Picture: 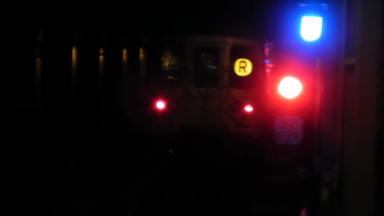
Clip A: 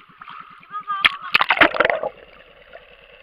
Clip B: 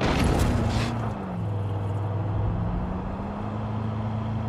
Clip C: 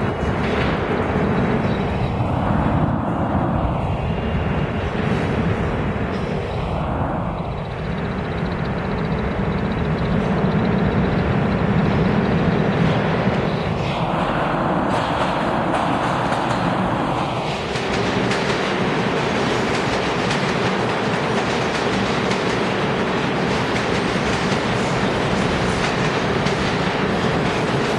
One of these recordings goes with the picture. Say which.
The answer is C